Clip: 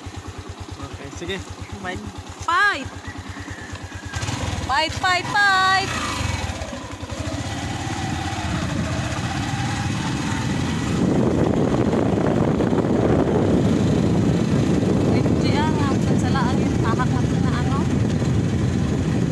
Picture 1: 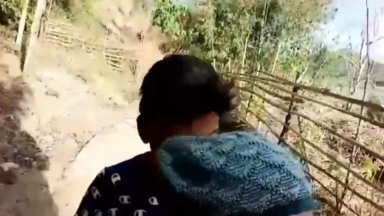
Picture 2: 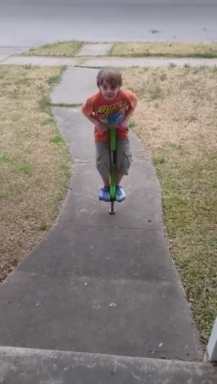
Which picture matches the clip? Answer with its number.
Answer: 1